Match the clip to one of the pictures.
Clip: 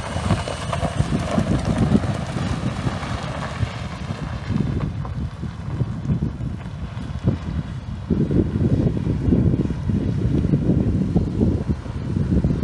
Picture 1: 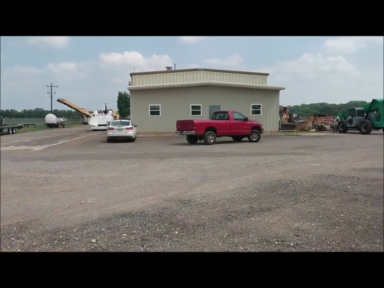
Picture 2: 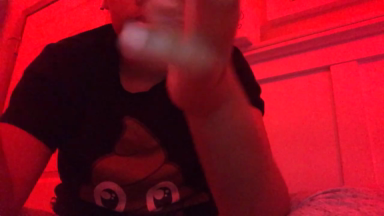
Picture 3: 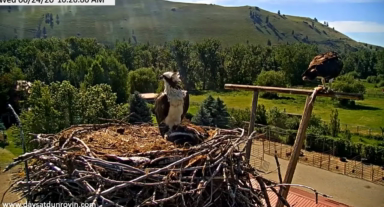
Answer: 1